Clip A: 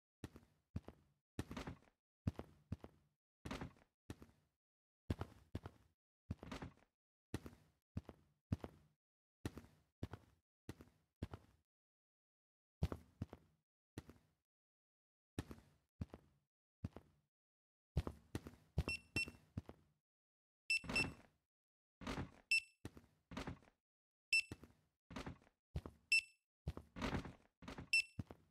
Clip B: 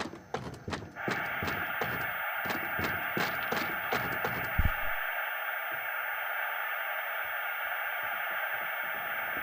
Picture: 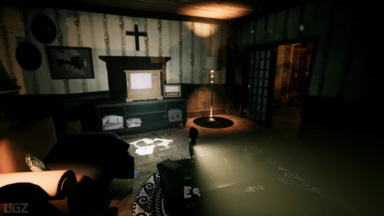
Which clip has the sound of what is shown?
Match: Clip B